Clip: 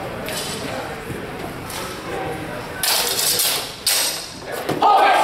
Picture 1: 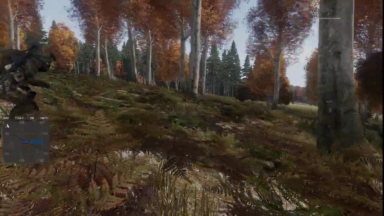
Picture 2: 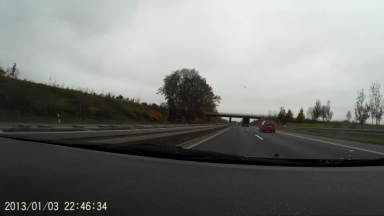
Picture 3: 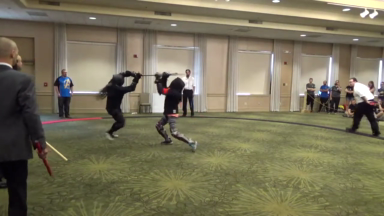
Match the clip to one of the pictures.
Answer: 3